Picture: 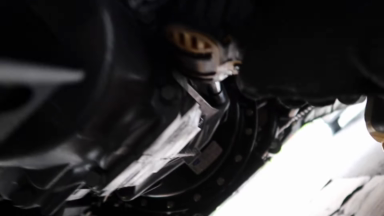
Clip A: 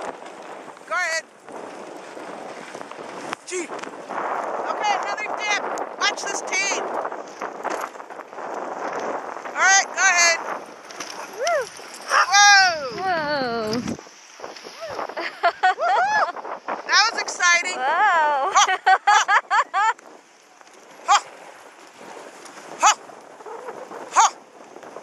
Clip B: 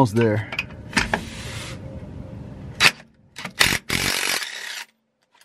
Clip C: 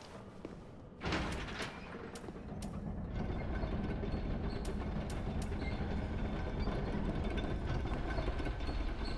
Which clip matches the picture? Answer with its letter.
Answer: B